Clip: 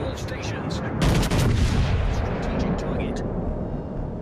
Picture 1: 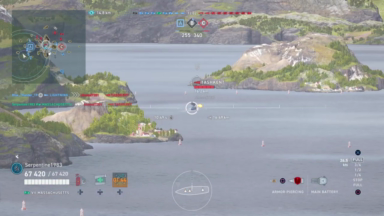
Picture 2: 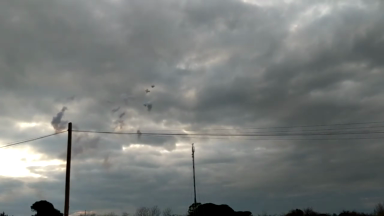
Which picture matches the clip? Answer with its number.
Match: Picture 1